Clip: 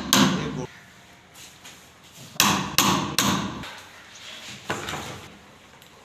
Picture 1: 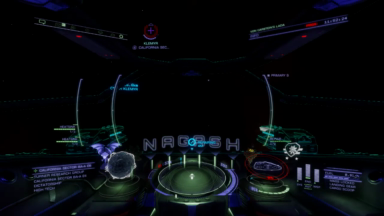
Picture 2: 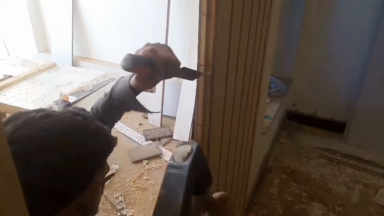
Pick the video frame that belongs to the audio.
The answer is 2